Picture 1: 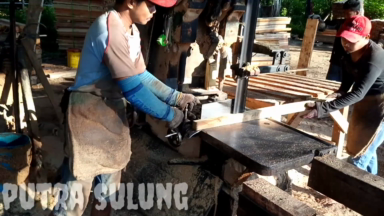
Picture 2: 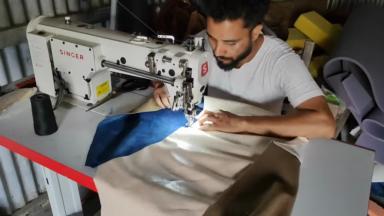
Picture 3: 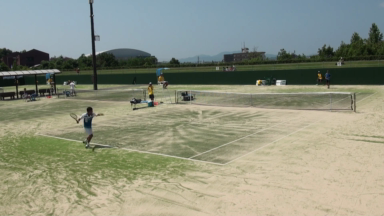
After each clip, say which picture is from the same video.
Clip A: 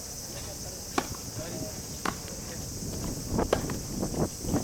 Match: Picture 3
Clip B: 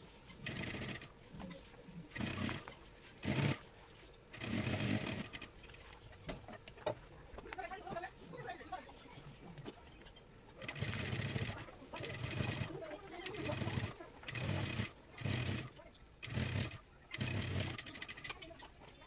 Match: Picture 2